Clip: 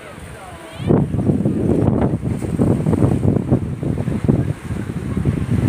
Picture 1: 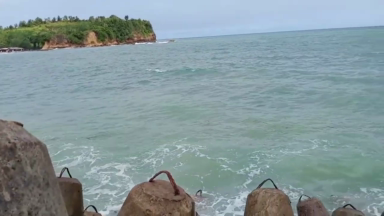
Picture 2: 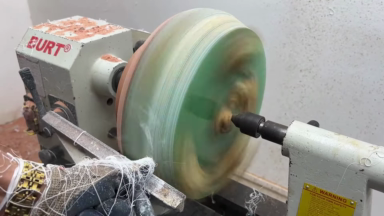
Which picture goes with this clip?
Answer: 1